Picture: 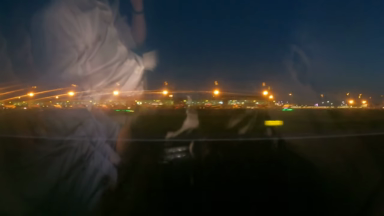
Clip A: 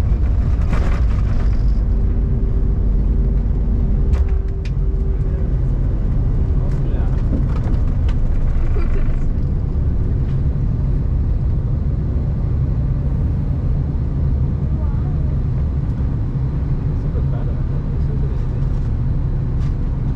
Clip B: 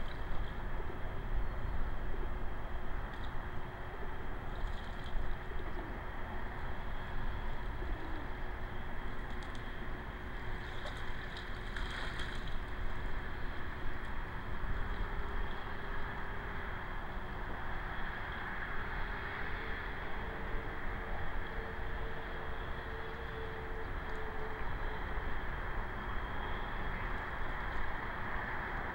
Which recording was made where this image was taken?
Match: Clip A